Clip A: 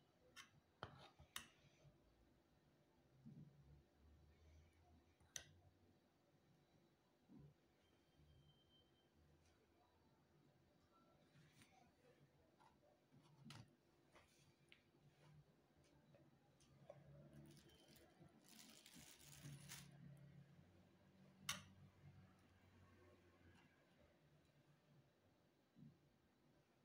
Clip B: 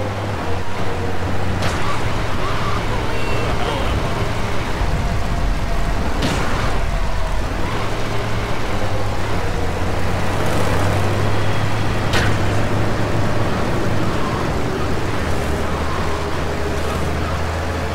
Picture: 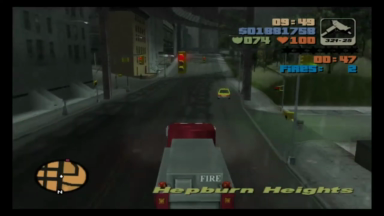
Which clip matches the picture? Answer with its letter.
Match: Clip B